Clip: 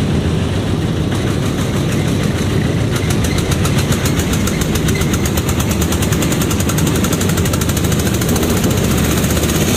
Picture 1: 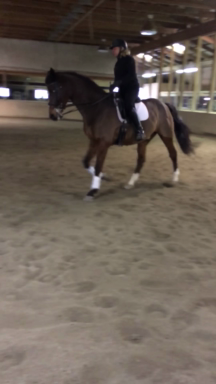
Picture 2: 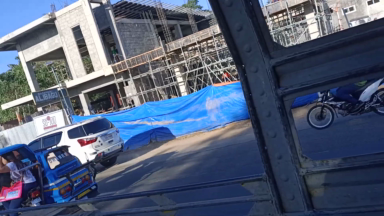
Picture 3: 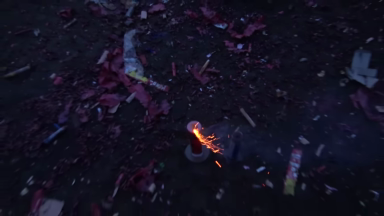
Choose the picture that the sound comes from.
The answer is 2